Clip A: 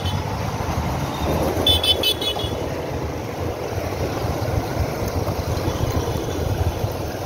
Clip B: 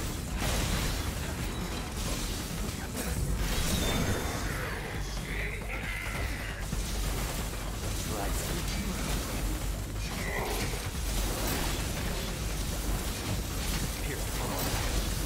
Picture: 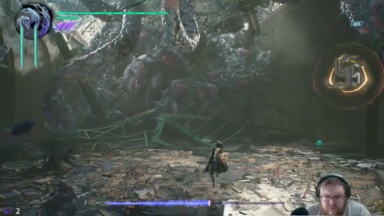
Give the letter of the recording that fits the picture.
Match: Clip B